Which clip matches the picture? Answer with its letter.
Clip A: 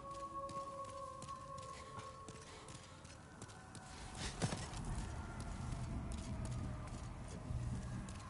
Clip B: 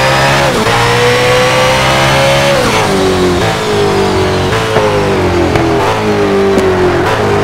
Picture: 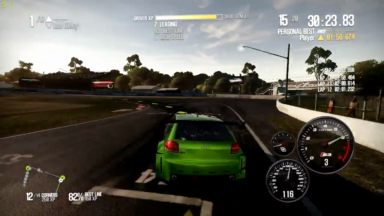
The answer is B